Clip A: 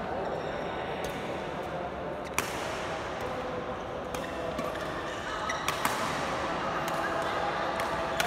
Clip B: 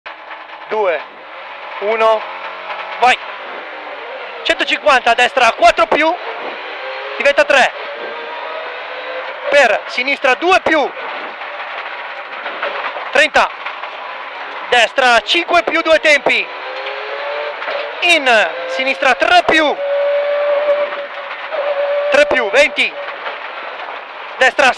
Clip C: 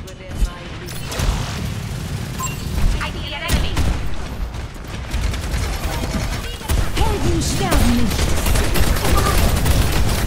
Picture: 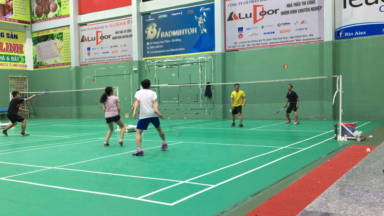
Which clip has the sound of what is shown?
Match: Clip A